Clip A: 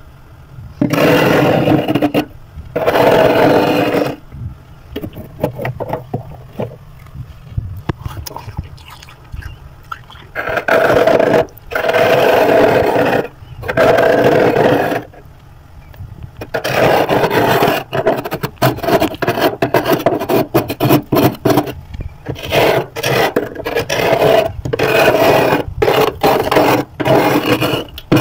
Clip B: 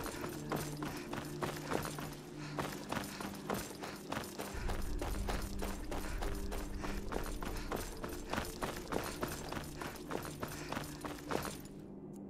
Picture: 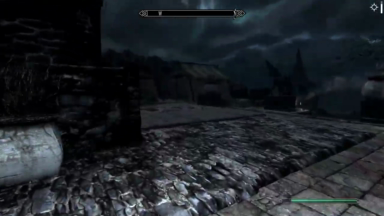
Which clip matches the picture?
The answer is B